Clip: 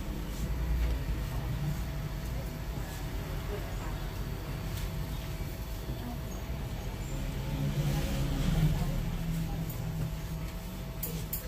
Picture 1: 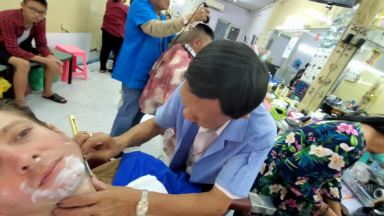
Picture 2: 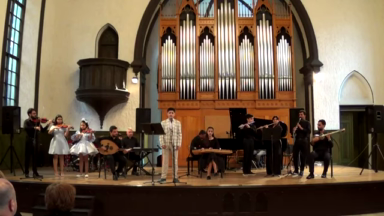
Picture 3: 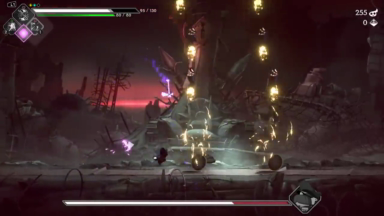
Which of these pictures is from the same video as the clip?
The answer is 1